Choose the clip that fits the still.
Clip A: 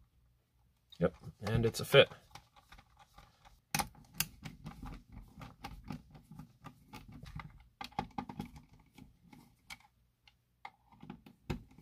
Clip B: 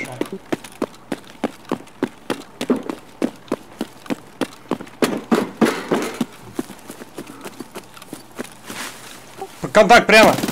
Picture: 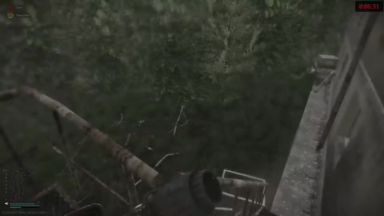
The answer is B